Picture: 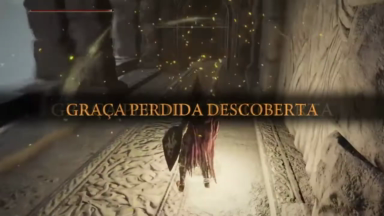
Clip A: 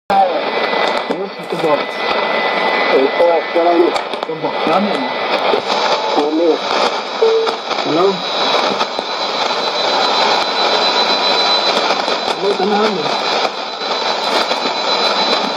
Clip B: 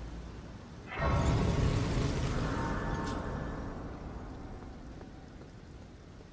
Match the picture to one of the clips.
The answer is B